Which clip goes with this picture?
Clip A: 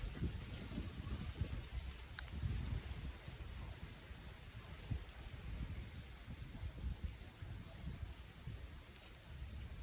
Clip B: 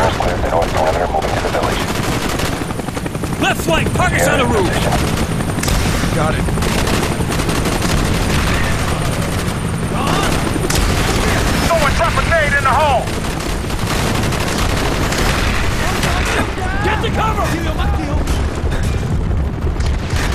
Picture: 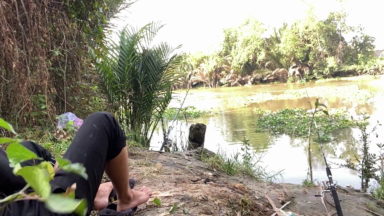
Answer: A